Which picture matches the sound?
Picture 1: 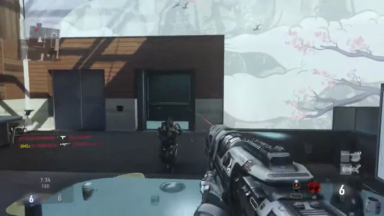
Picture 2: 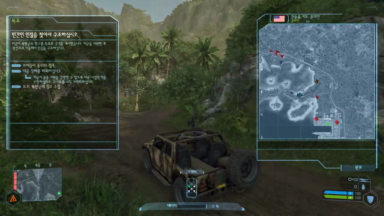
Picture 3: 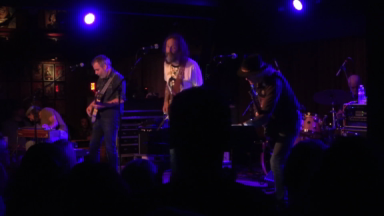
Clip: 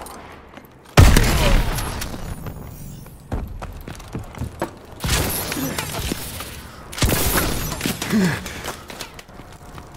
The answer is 1